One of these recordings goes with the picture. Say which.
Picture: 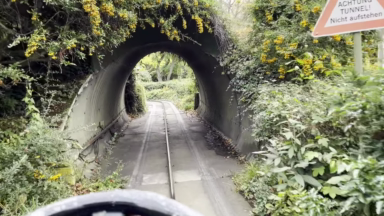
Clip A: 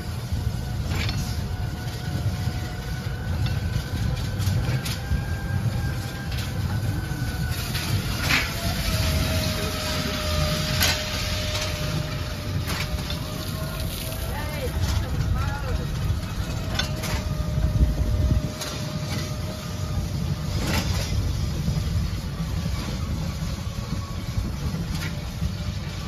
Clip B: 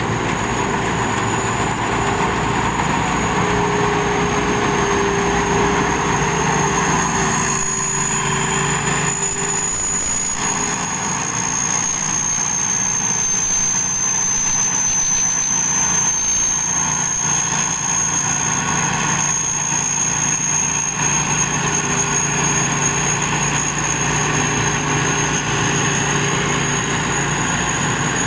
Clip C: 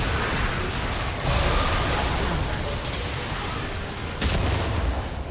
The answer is A